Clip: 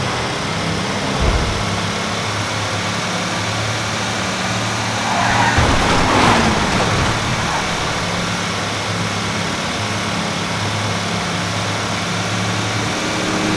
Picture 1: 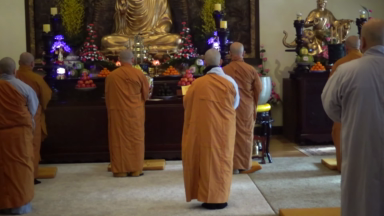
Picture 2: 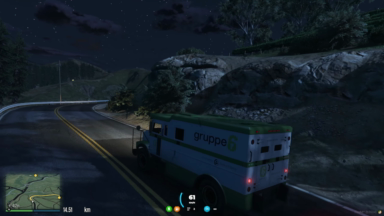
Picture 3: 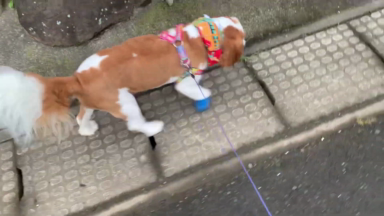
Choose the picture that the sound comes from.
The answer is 2